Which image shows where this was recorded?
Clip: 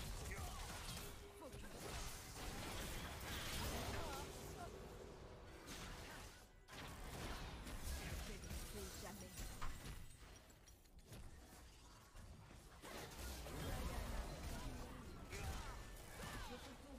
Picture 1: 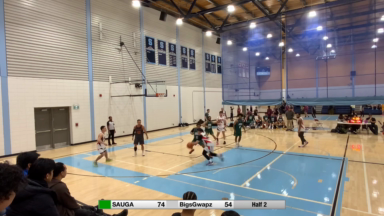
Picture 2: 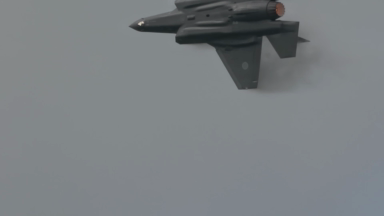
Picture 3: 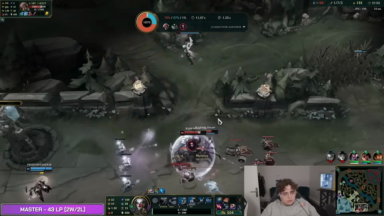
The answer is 3